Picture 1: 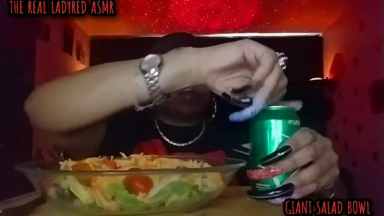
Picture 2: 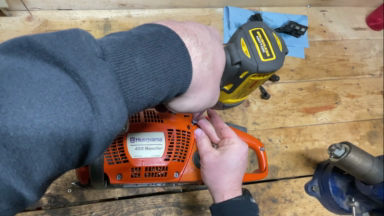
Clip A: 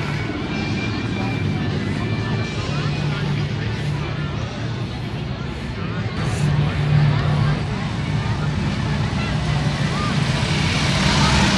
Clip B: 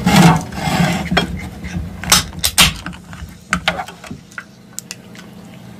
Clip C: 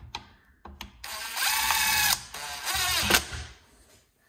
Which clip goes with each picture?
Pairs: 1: B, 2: C